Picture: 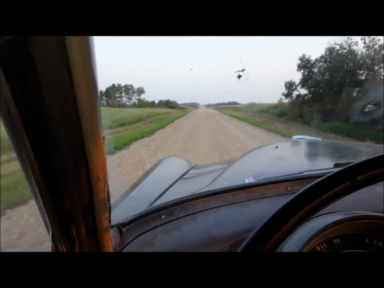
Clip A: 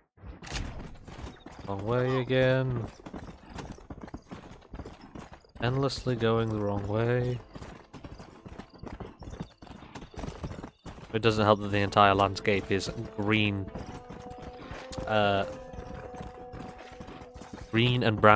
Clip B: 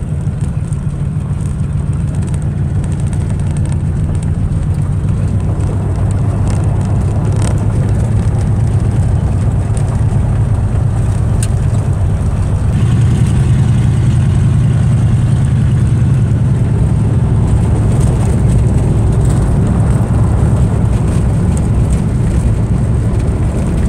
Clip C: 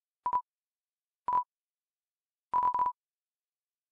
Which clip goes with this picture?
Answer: B